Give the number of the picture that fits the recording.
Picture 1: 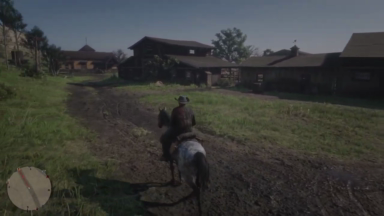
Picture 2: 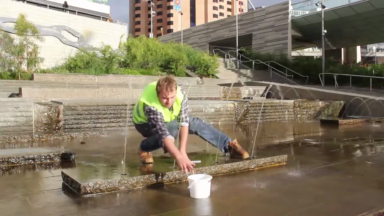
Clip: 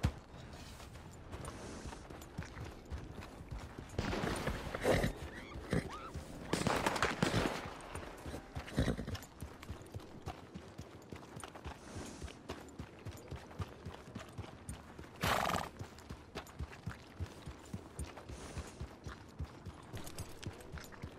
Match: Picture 1